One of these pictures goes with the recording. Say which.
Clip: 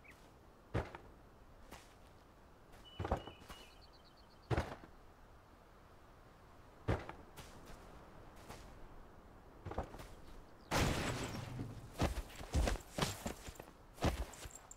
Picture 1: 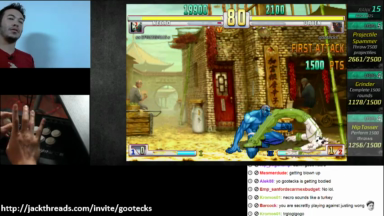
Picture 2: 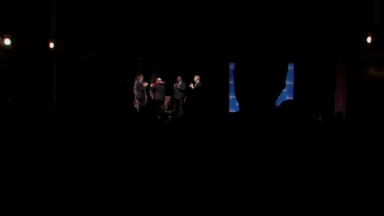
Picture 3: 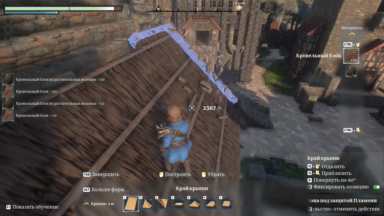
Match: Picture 3